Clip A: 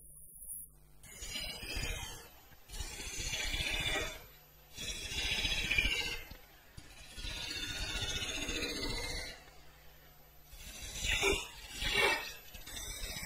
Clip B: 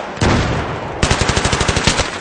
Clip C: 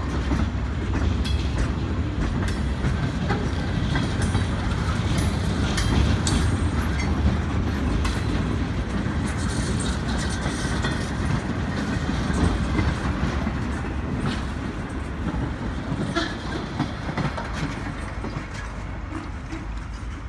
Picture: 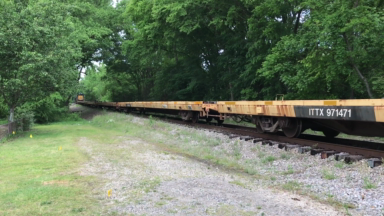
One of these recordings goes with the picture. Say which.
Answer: C